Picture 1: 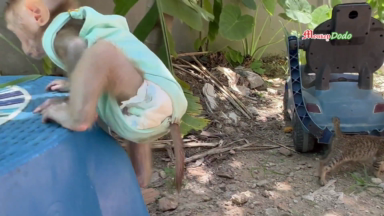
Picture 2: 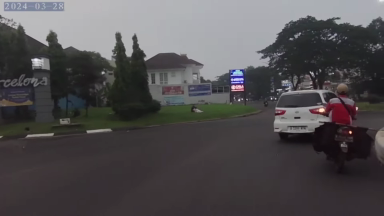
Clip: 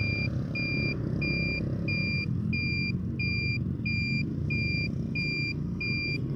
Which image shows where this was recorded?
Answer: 2